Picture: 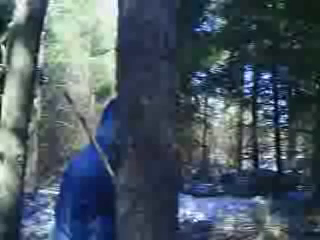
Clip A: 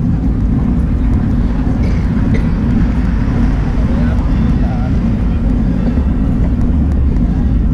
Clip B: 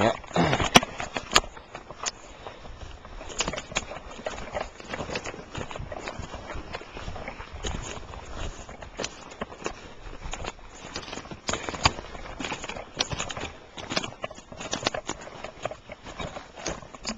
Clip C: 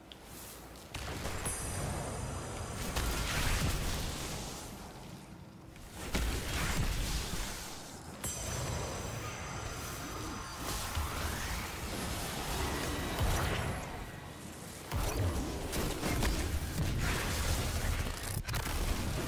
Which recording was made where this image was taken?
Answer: B